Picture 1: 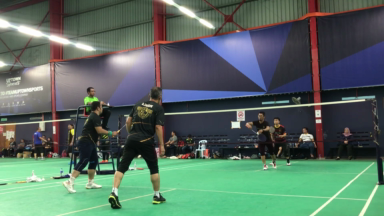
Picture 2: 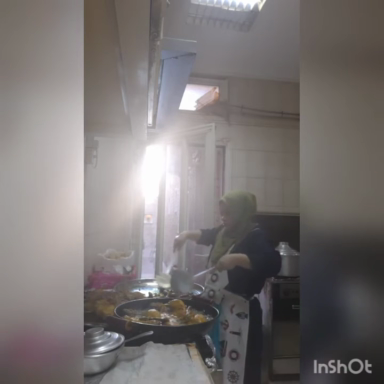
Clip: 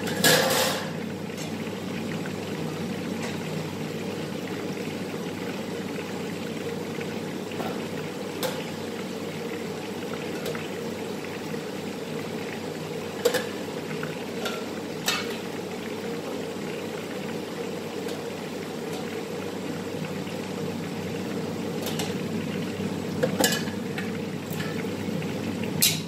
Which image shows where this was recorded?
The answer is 2